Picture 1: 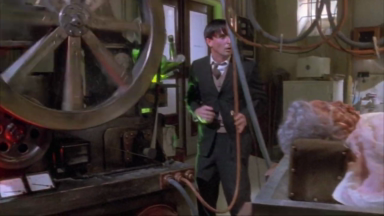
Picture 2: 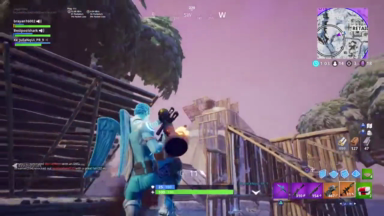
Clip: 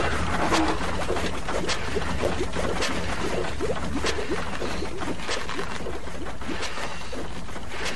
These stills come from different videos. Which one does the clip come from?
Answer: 1